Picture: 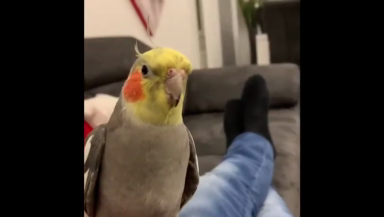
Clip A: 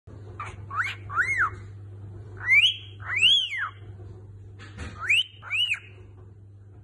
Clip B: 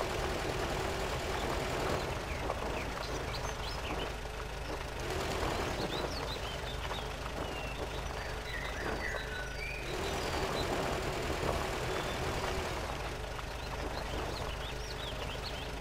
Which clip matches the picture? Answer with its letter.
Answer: A